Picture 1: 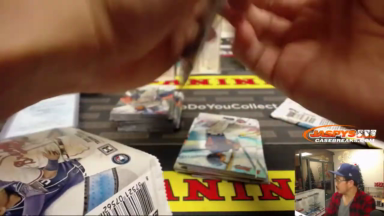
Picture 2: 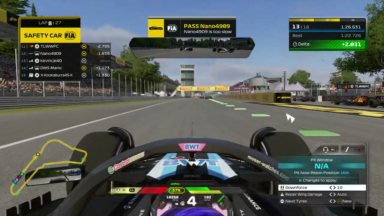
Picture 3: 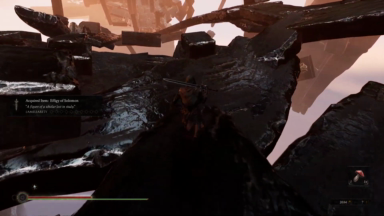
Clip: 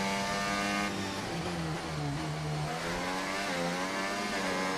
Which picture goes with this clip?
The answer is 2